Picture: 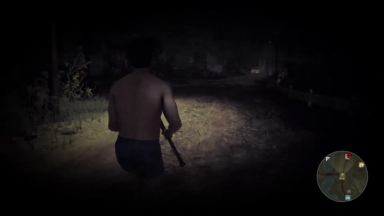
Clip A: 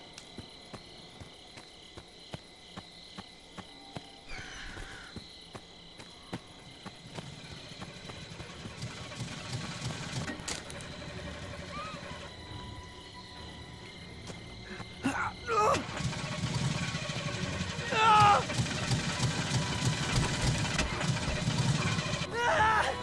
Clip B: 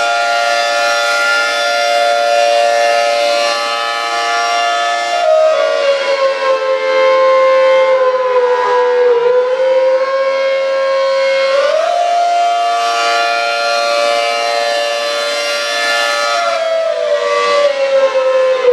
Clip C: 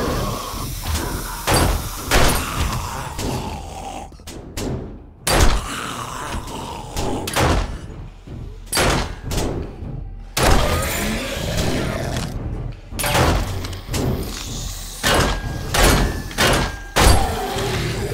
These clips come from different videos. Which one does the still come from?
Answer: A